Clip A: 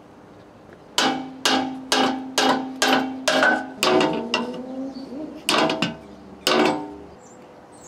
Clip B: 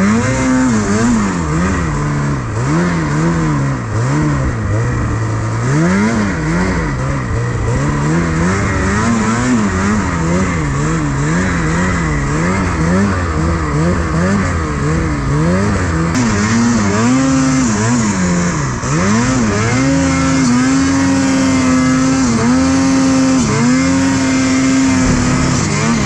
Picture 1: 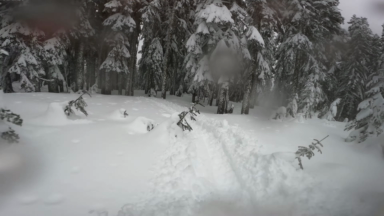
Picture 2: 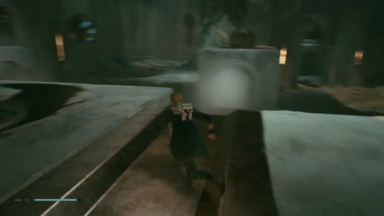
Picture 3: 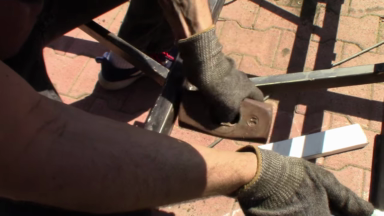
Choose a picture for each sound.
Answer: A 3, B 1